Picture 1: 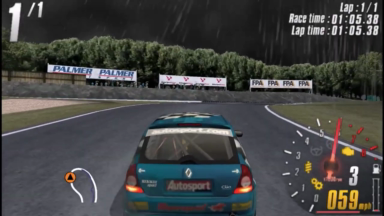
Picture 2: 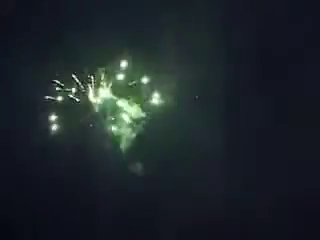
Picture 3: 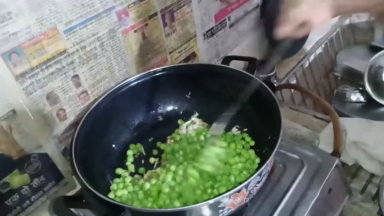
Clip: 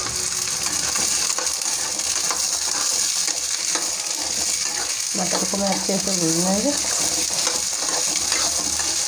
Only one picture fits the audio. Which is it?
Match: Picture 3